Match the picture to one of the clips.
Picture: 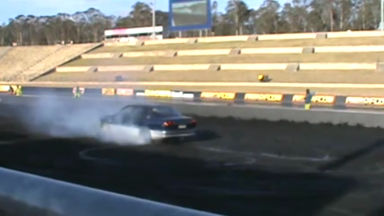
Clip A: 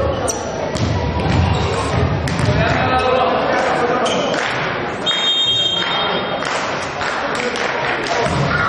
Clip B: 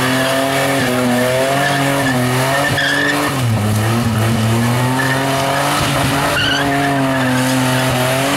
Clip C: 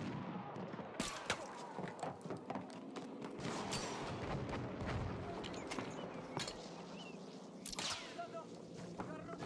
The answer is B